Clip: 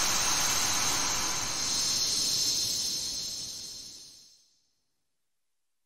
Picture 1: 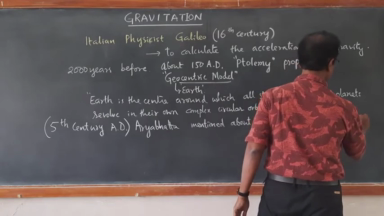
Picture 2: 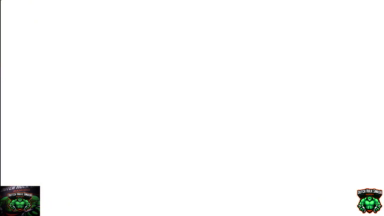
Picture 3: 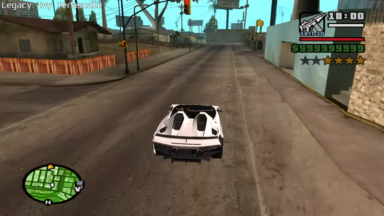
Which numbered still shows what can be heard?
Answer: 2